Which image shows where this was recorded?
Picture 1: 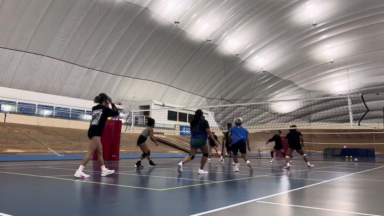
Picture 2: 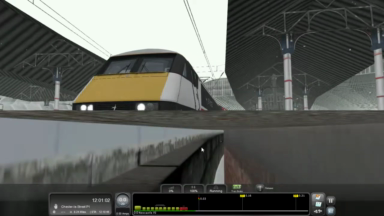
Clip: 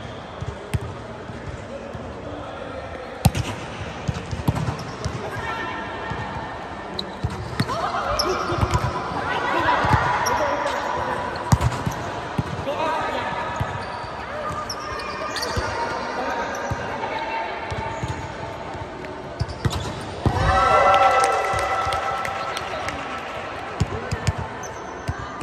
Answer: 1